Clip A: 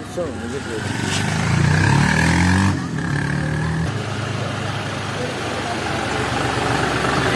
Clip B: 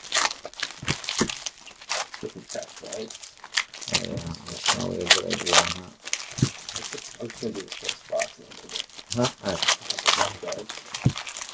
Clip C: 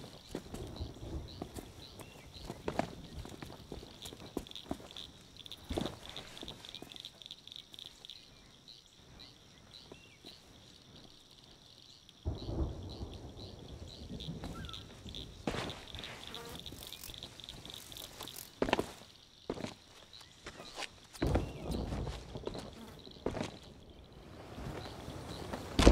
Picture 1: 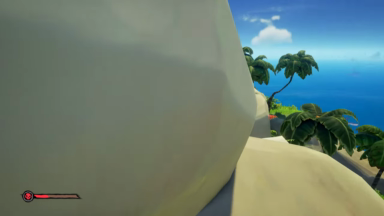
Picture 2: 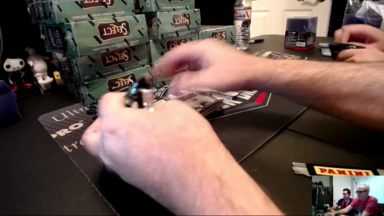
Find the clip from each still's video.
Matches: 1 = C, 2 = B